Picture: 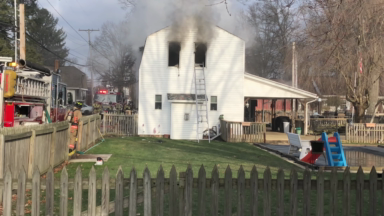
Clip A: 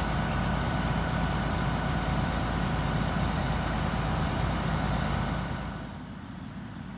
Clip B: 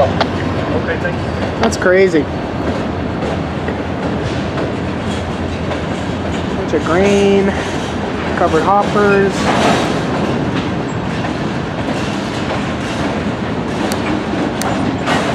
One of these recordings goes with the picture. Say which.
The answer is A